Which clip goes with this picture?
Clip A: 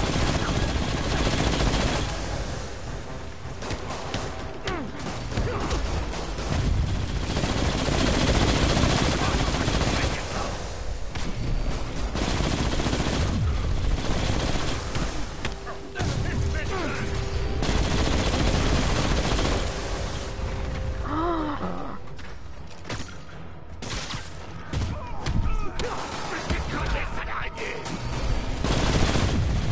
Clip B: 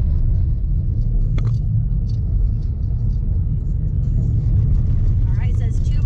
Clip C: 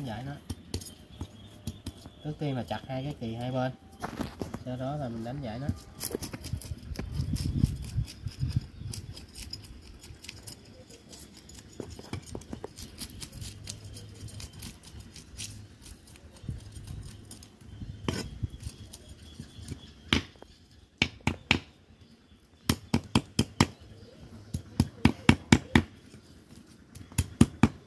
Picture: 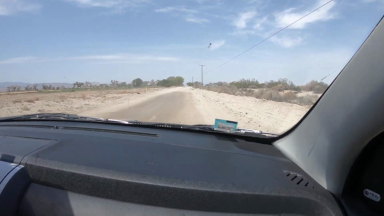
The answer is B